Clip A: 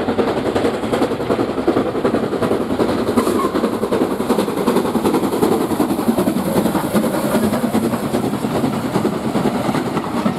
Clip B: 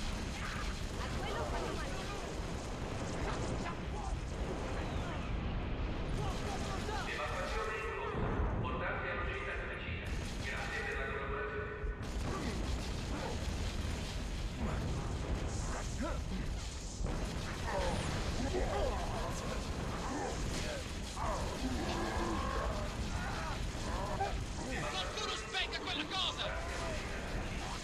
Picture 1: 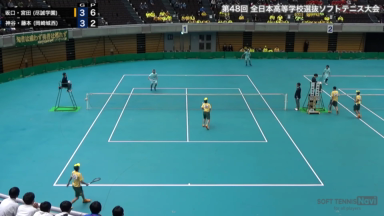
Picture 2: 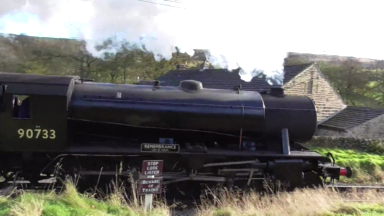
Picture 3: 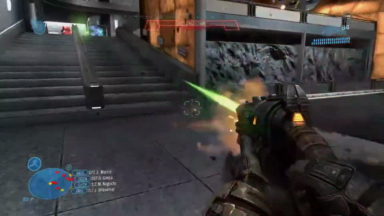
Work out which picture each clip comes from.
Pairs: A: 2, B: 3